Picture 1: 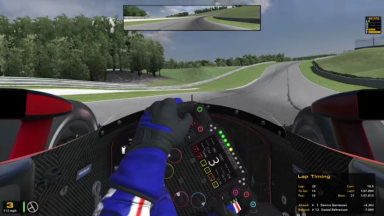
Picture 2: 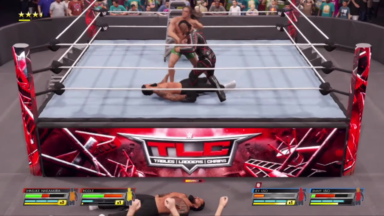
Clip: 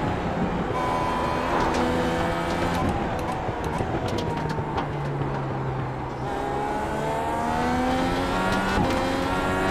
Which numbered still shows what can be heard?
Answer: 1